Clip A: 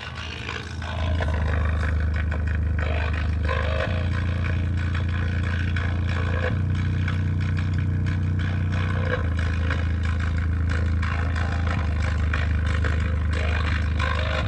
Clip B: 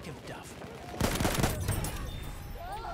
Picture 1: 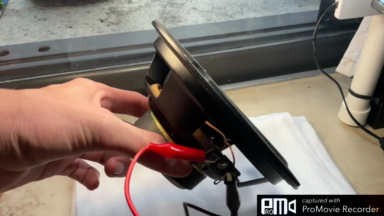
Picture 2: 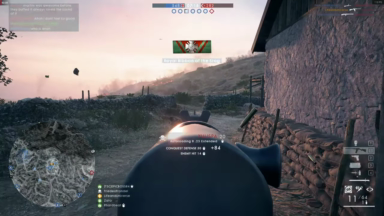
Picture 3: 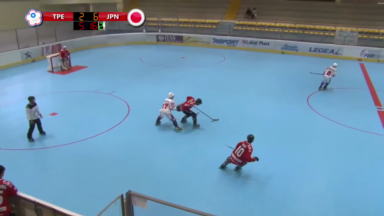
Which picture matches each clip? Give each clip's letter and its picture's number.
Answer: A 1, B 2